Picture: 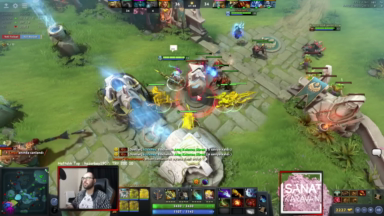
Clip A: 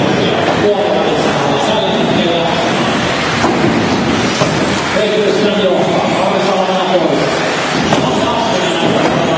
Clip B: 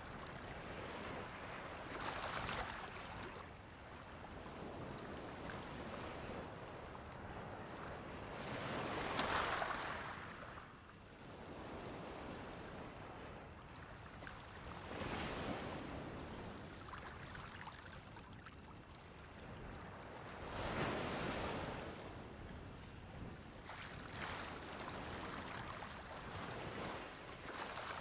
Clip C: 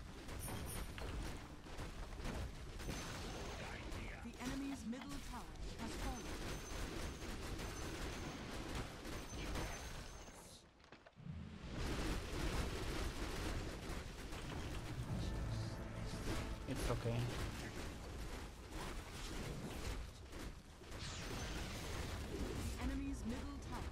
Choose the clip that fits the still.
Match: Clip C